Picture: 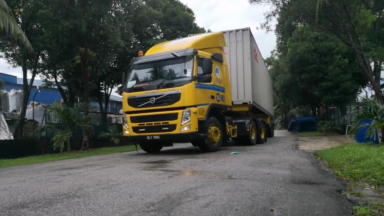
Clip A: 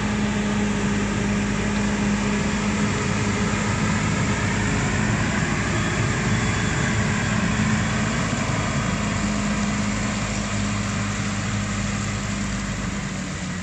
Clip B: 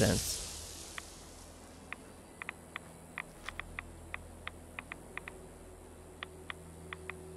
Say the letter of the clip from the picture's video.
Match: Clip A